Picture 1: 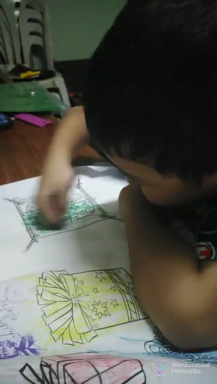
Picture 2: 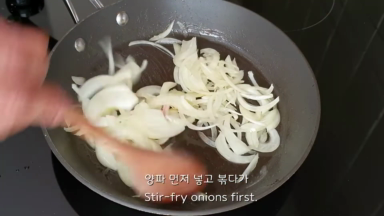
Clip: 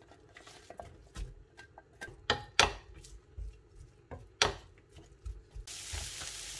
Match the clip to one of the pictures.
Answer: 2